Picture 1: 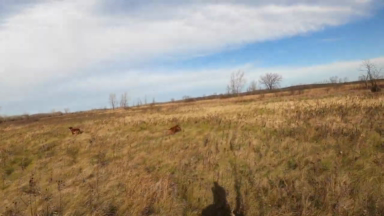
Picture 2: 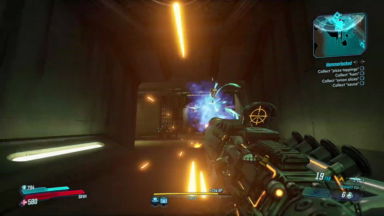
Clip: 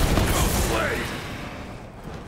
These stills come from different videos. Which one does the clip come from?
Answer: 2